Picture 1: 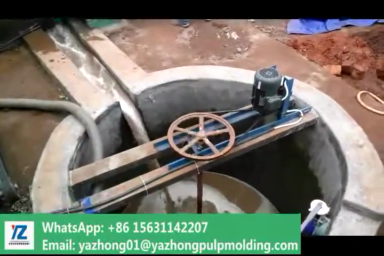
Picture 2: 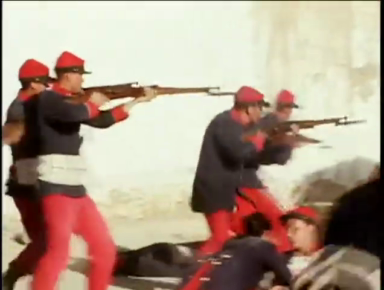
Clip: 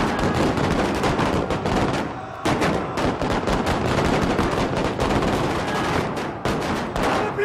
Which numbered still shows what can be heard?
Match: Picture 2